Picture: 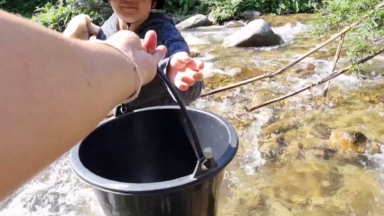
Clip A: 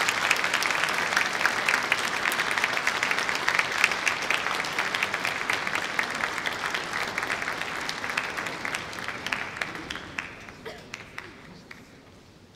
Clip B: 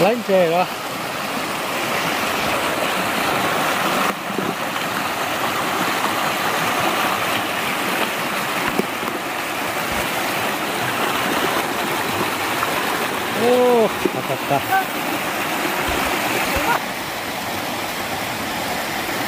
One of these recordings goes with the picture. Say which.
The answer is B